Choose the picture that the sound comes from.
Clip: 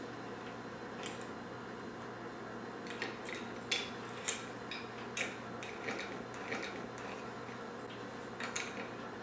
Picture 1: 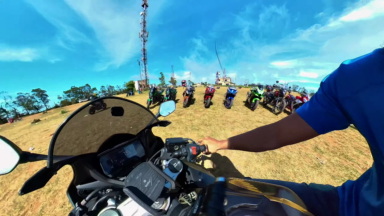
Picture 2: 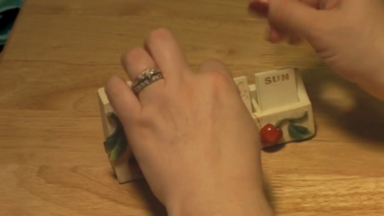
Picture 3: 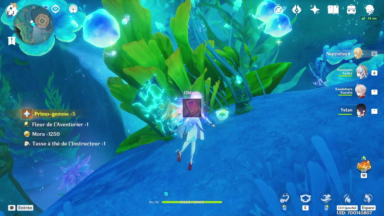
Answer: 2